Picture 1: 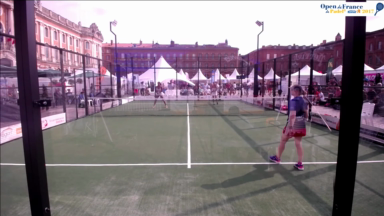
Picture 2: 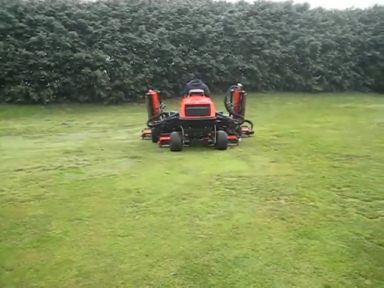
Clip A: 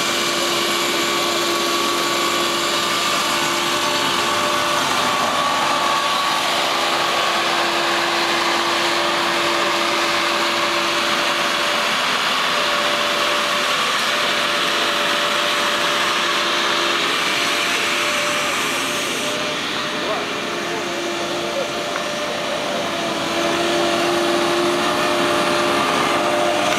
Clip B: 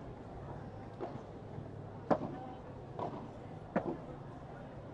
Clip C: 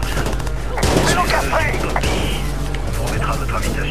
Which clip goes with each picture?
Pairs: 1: B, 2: A